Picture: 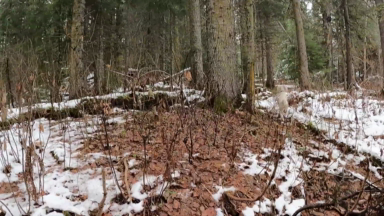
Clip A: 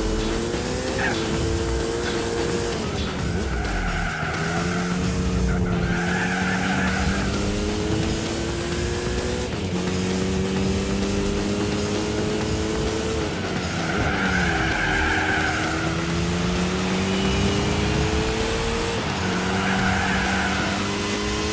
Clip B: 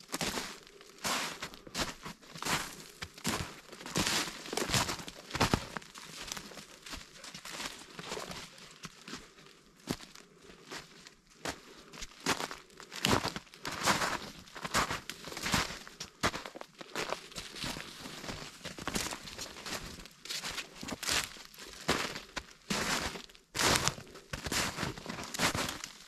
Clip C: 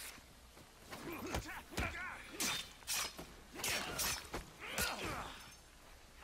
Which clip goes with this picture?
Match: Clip B